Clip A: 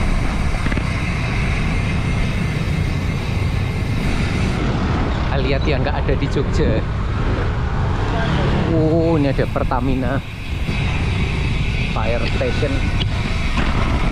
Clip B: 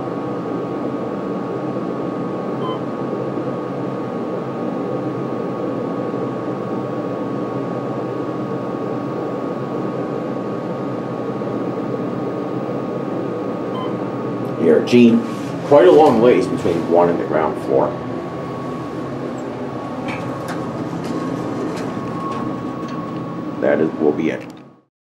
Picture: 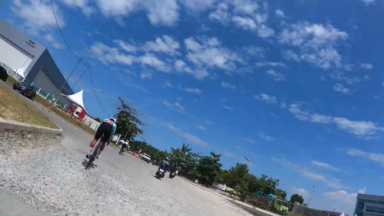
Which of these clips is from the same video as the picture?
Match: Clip A